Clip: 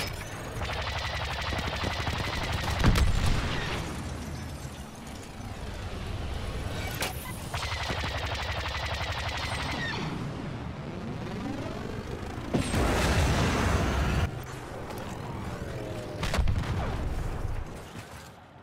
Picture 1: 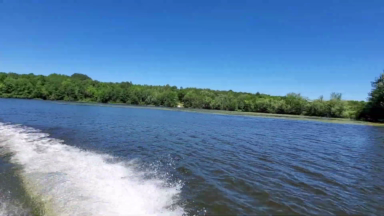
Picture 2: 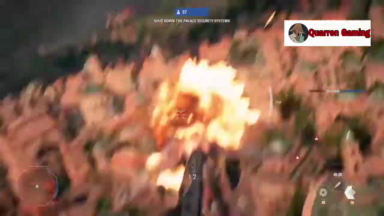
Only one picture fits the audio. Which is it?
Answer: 2